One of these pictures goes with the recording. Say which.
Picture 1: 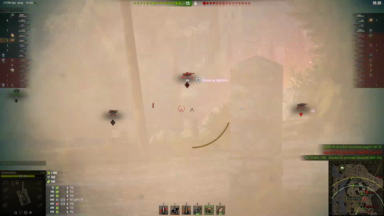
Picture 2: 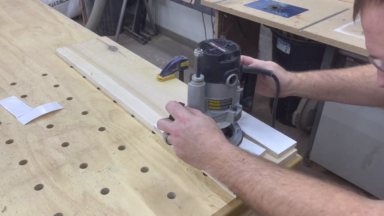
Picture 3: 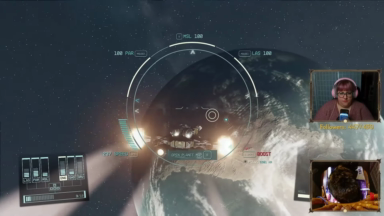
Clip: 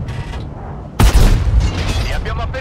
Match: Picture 1